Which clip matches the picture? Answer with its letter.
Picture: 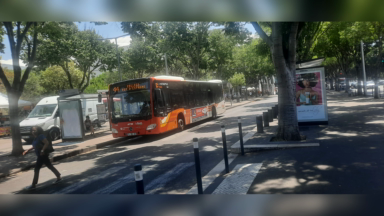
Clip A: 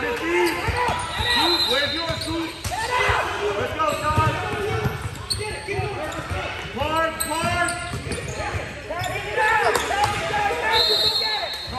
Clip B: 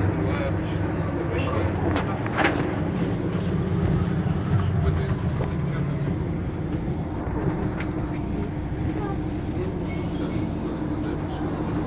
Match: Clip B